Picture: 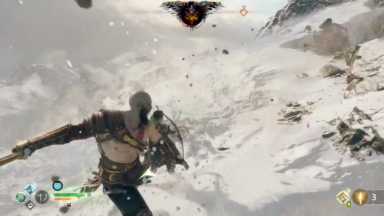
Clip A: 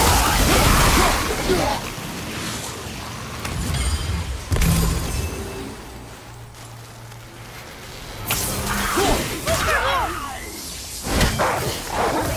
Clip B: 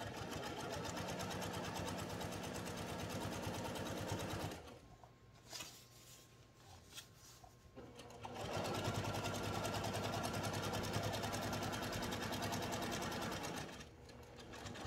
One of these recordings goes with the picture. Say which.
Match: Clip A